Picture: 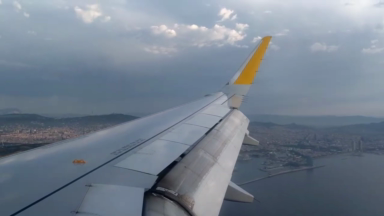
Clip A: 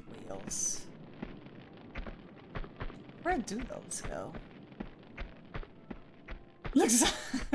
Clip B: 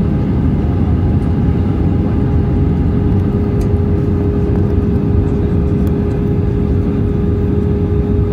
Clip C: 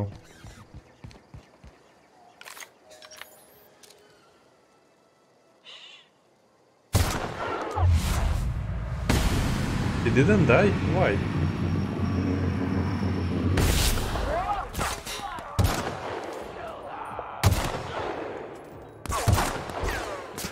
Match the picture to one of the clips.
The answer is B